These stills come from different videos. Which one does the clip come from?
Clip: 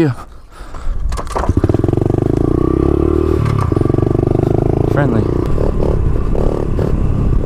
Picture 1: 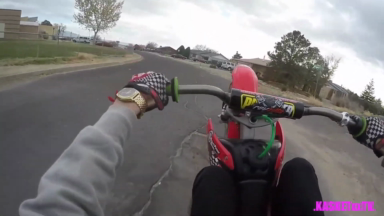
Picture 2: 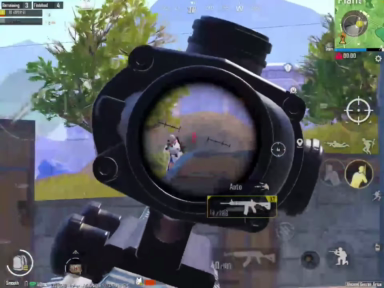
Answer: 1